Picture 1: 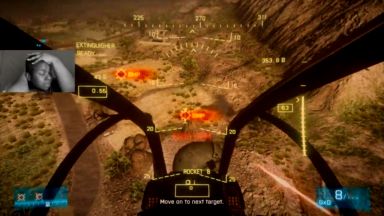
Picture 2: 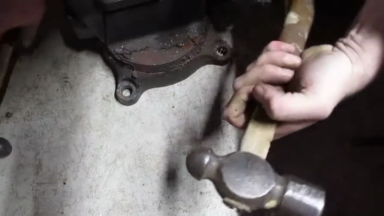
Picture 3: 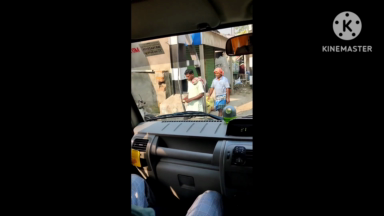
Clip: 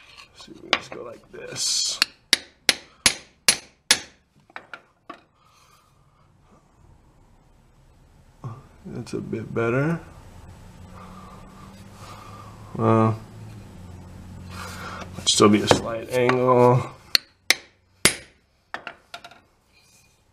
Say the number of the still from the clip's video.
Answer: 2